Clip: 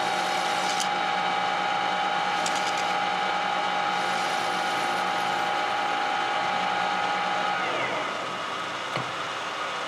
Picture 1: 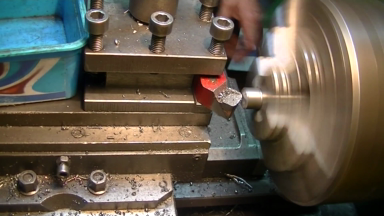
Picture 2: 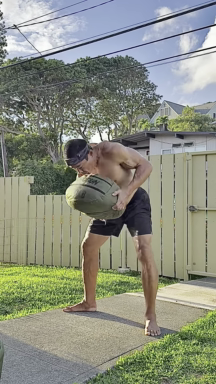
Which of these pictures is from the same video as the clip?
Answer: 1